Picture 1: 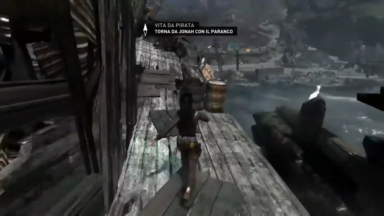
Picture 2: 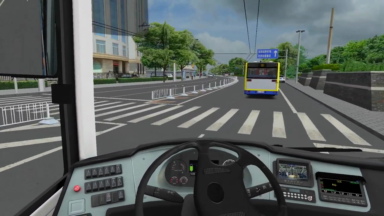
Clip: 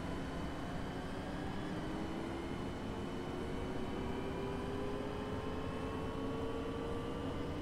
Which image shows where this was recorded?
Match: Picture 2